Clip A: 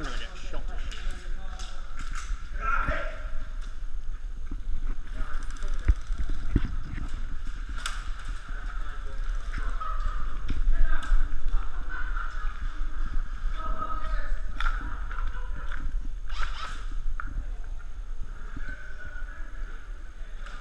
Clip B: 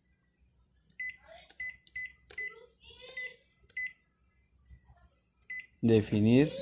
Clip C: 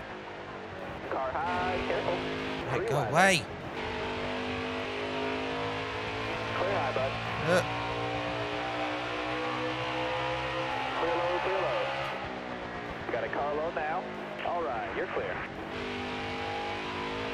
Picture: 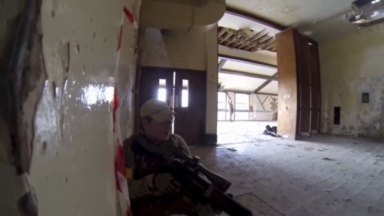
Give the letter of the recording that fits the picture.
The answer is A